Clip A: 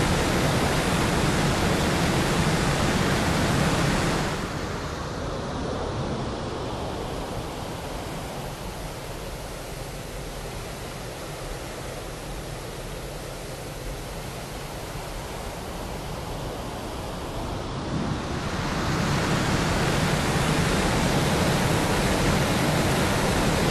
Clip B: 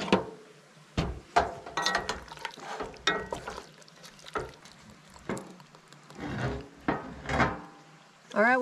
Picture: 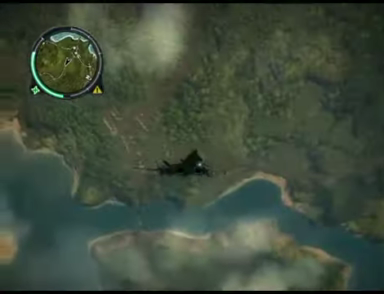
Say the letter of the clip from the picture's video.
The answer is A